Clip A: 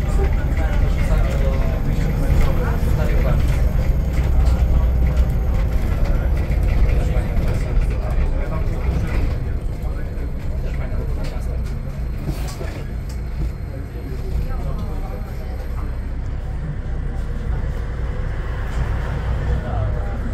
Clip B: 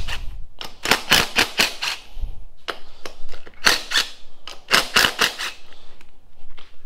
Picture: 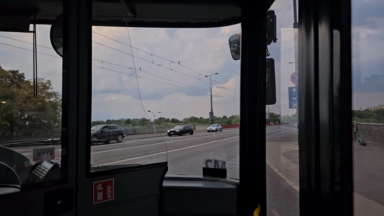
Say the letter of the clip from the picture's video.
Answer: A